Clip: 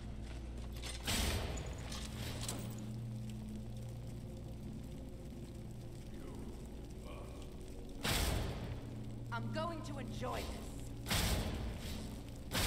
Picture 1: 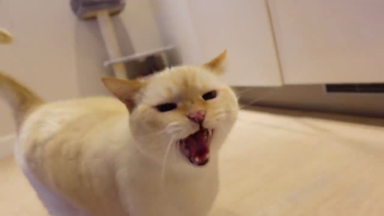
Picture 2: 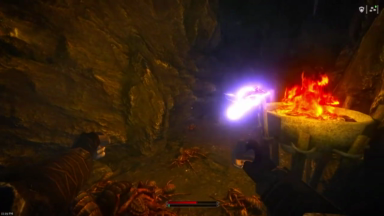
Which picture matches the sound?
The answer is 2